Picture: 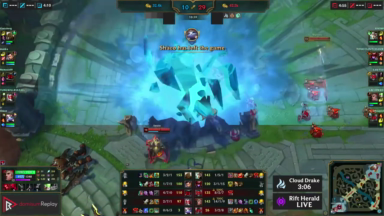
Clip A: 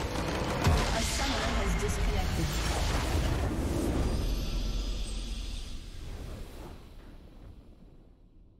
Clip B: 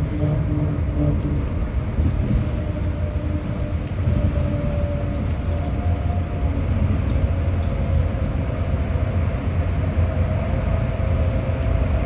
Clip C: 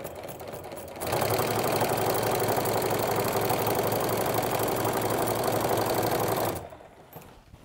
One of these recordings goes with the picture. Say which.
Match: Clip A